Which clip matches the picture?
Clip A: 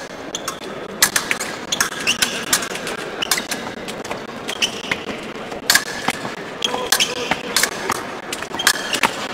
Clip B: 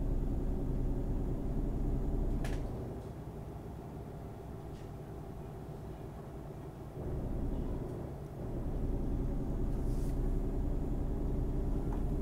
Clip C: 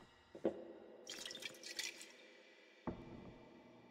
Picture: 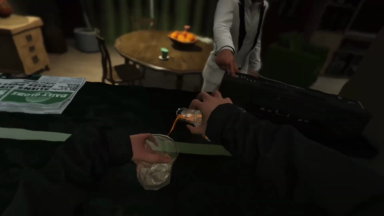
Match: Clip C